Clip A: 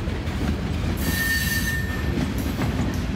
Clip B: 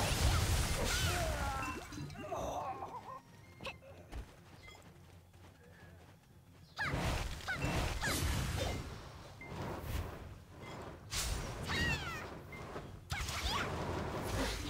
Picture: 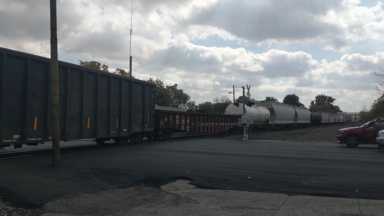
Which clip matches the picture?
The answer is A